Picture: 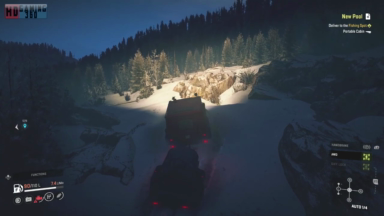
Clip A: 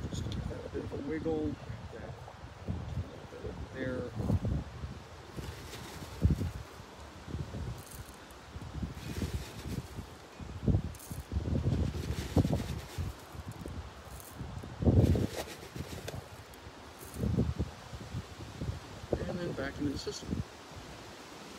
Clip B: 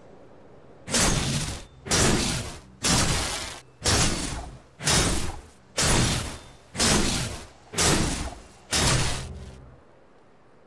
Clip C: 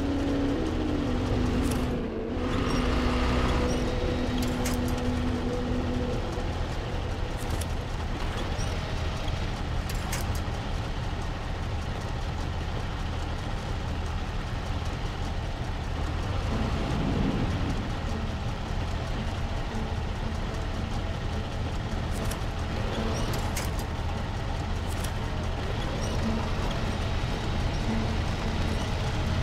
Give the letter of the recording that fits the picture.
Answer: C